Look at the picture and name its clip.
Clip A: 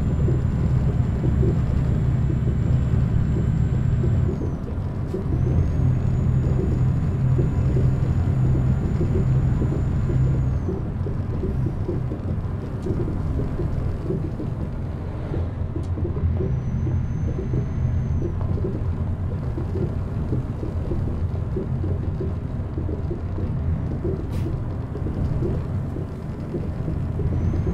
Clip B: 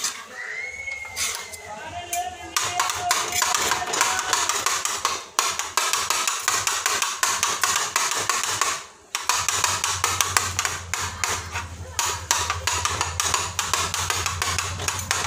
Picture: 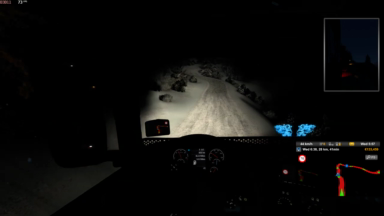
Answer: A